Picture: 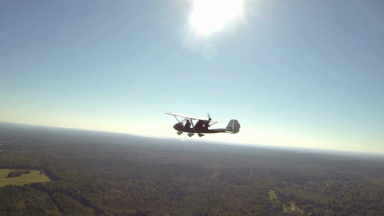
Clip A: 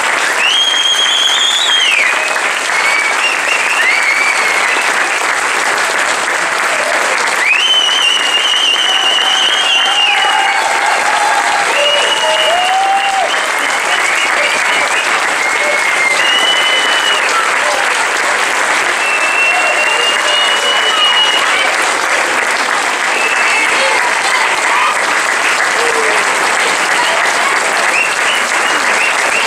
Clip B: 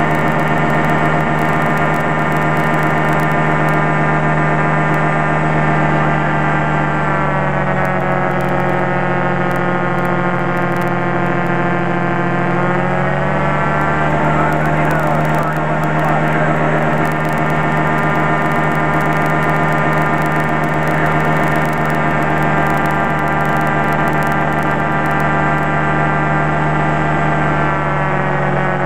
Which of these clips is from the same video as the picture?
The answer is B